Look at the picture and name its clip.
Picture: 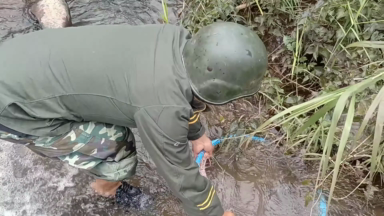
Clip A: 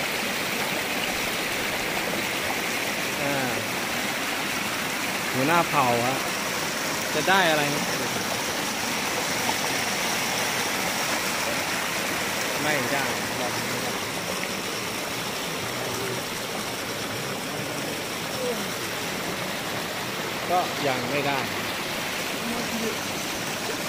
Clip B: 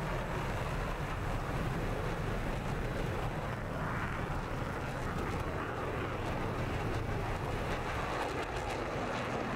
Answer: A